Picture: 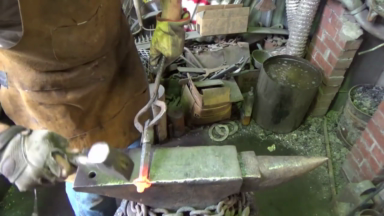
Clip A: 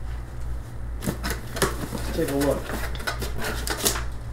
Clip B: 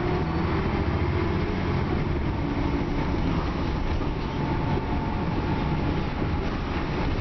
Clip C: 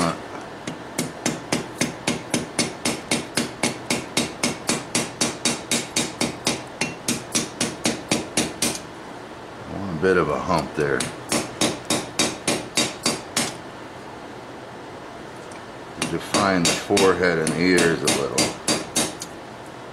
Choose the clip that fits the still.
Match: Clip C